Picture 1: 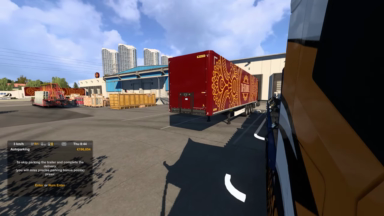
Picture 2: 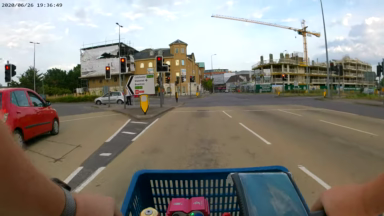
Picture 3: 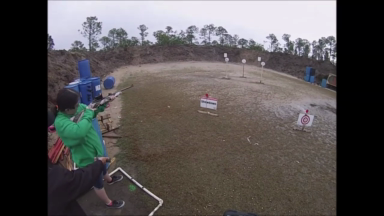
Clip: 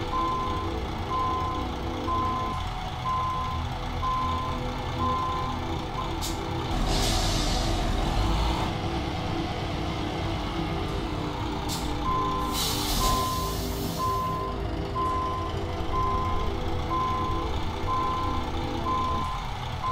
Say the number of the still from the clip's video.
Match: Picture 1